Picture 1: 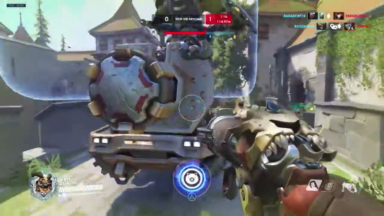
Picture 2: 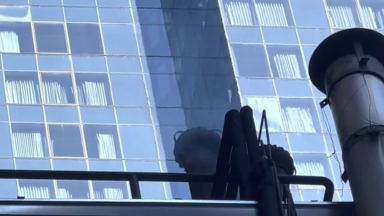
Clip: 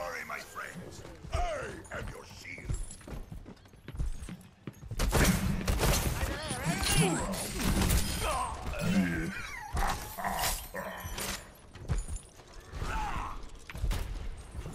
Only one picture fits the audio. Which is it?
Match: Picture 1